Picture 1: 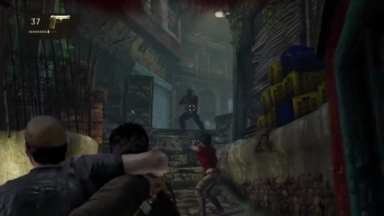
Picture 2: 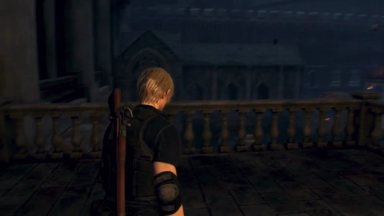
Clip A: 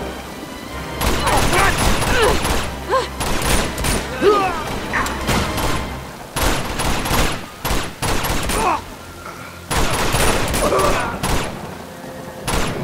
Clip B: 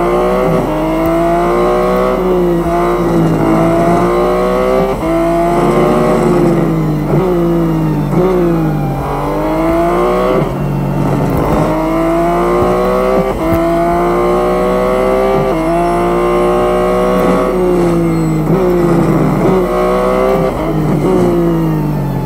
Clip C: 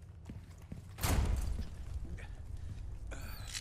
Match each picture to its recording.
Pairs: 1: A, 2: C